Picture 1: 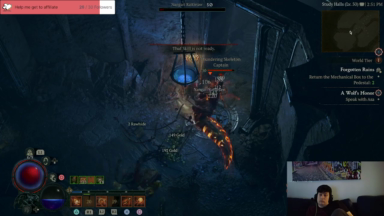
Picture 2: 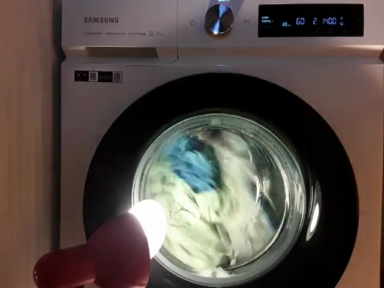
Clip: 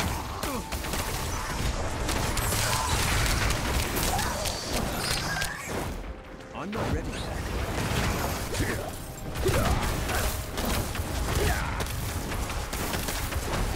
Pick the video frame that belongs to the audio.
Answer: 1